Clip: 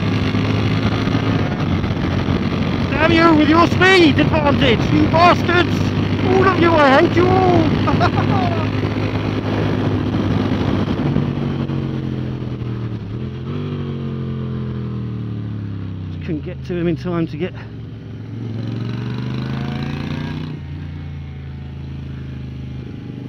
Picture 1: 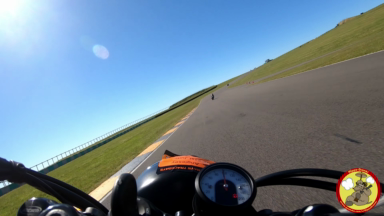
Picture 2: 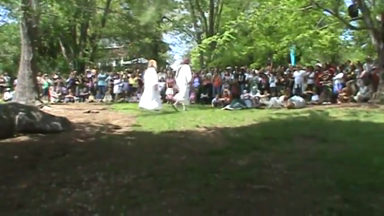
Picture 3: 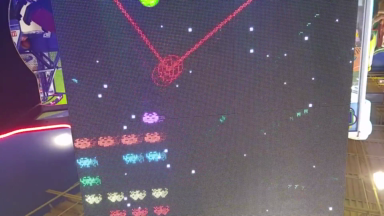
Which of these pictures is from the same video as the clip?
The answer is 1